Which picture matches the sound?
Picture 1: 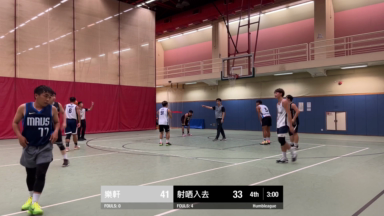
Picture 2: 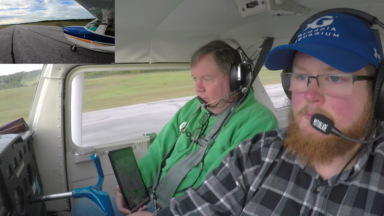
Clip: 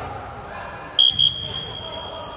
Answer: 1